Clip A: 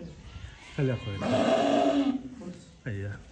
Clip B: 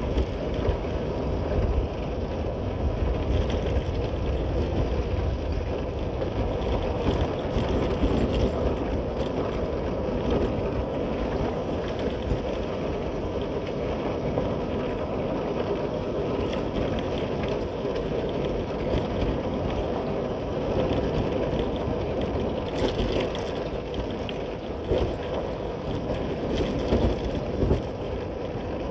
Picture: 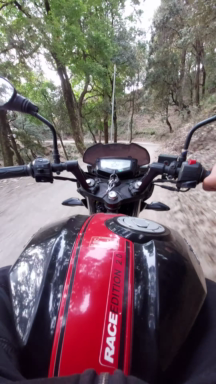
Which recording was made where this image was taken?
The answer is B